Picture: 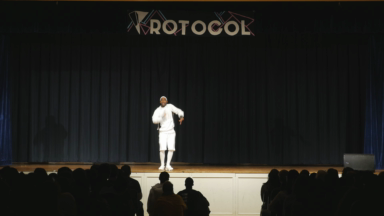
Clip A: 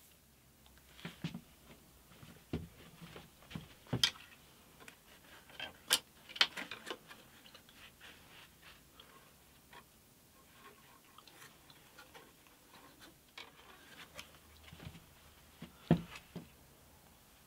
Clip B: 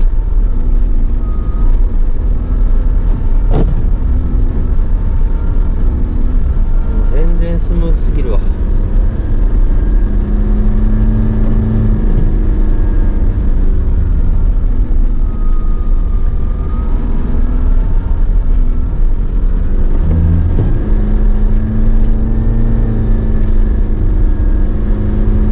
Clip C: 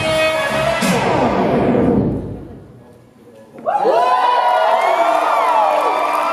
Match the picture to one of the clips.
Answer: C